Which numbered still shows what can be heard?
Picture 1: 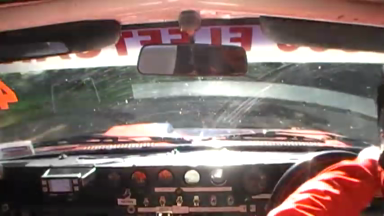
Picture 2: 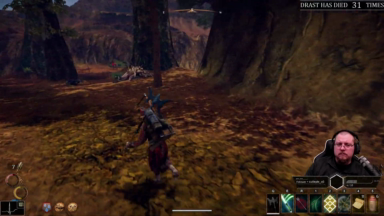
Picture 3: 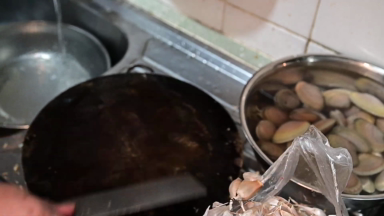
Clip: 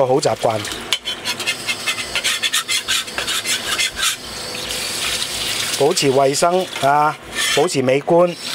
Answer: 3